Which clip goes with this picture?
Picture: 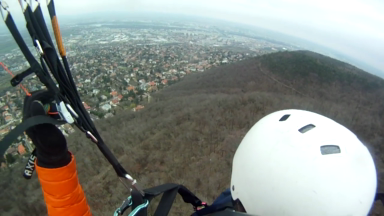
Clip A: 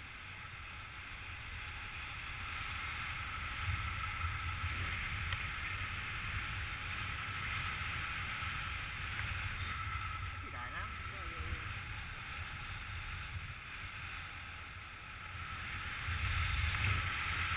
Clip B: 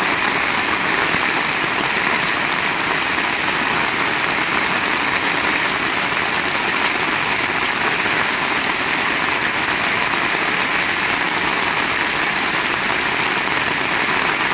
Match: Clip A